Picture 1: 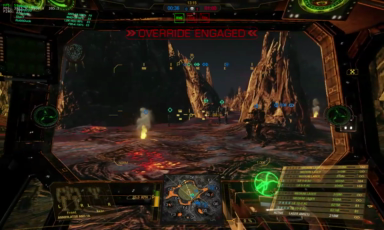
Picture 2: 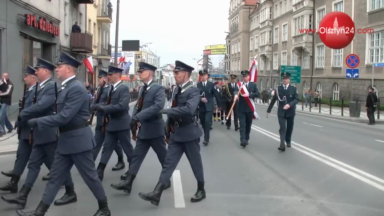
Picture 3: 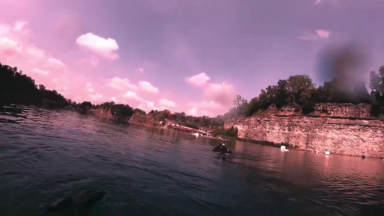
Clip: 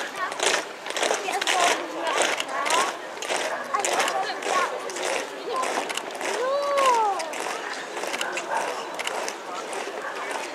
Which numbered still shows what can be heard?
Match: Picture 2